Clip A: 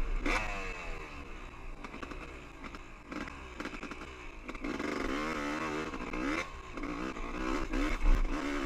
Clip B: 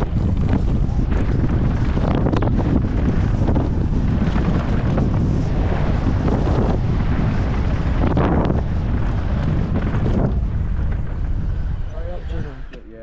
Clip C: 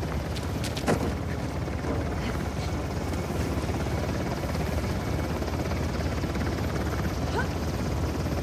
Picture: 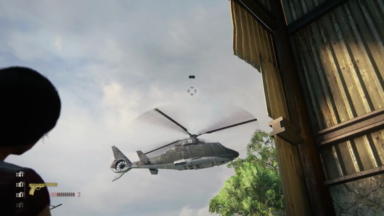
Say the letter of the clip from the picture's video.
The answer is C